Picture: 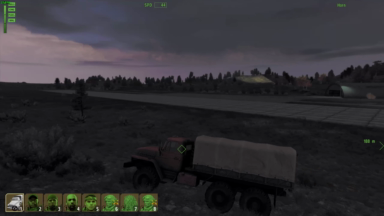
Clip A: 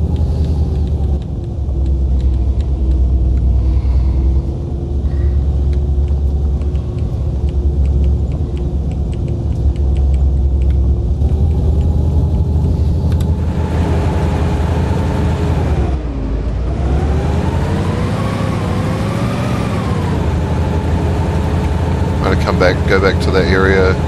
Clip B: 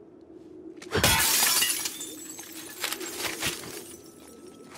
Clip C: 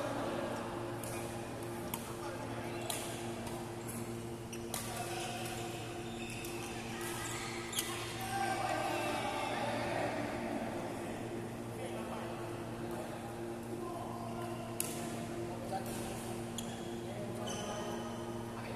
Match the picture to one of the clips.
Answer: A